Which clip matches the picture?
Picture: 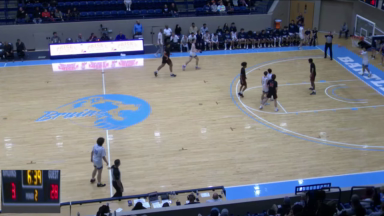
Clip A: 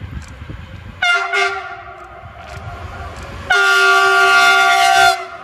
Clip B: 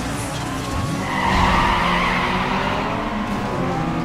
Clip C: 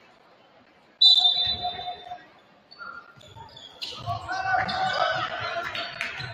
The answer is C